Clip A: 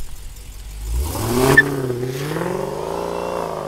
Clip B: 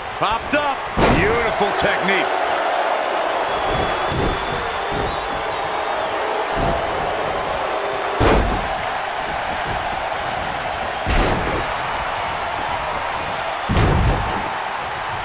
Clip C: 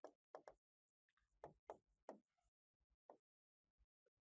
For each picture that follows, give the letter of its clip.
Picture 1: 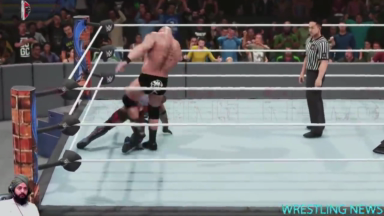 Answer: B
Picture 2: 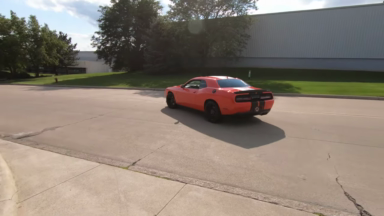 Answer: A